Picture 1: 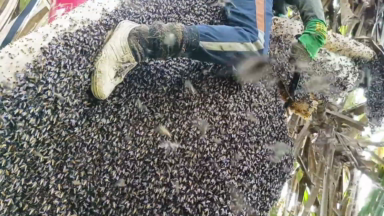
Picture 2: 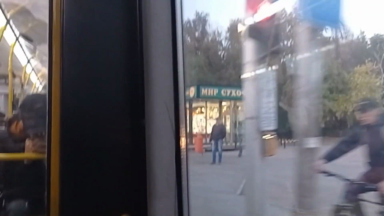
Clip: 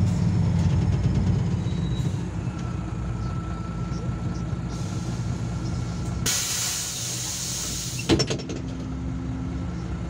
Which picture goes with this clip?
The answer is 2